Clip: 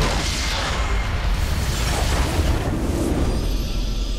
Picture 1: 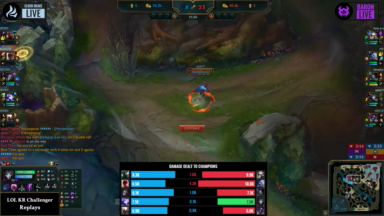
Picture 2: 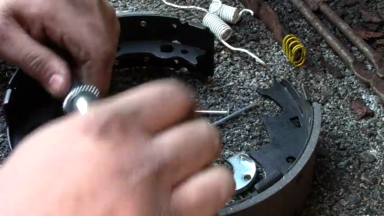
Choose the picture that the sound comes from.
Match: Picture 1